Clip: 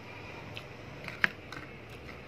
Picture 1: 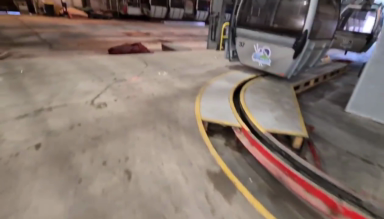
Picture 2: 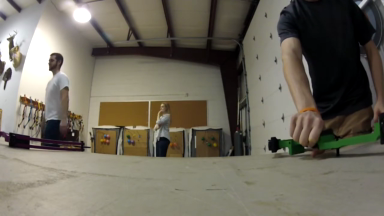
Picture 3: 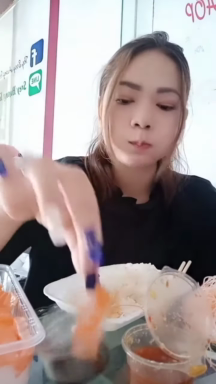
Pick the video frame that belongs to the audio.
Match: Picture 3